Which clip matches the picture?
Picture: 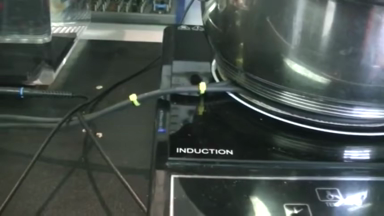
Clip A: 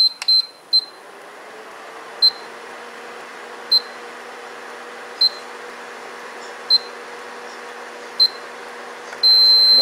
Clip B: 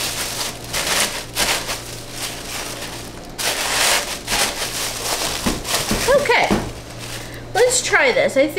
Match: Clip A